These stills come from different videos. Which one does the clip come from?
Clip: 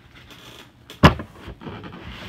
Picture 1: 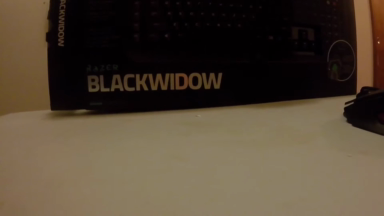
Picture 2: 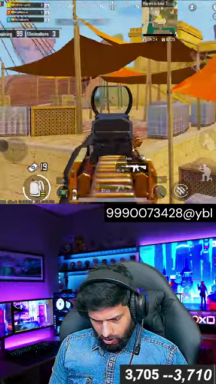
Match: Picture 1